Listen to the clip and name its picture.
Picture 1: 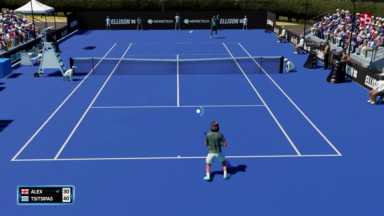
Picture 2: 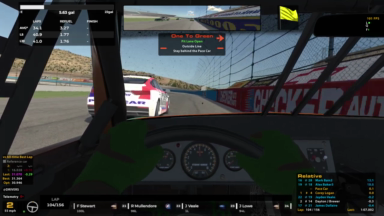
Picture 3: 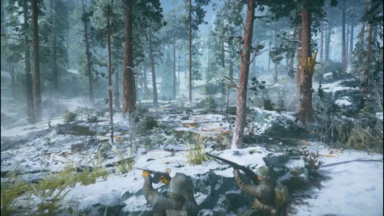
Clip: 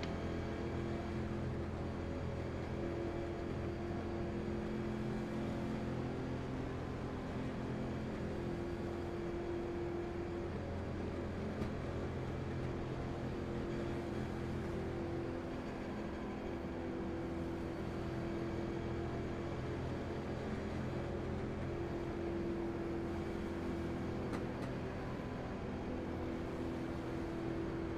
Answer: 2